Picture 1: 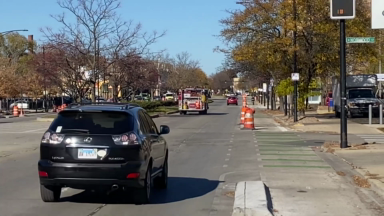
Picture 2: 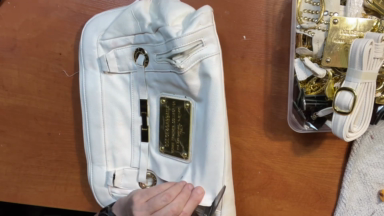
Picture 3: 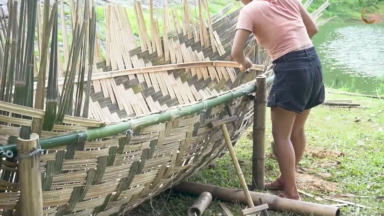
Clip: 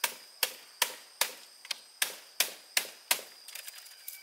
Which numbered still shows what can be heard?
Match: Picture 3